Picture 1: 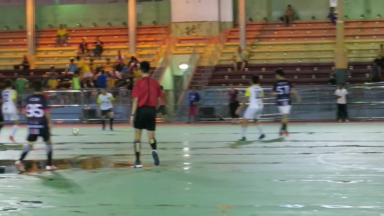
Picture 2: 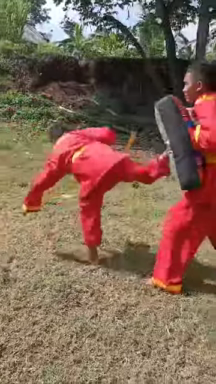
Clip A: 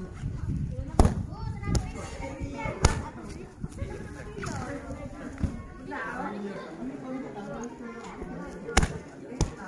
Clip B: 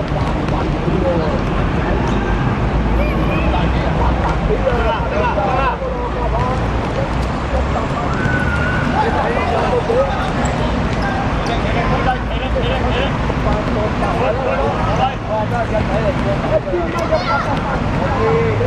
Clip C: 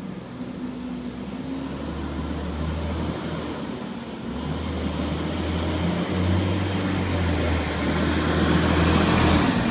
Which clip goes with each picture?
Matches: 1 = B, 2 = A